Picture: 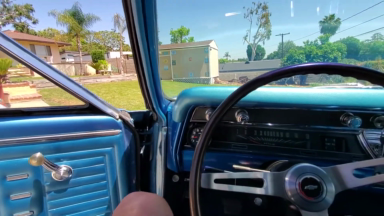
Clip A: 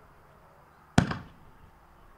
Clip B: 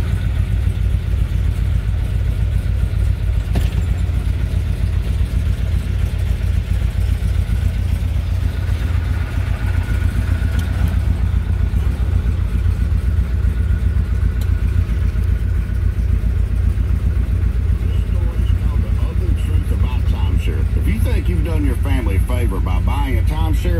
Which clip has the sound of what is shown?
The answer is B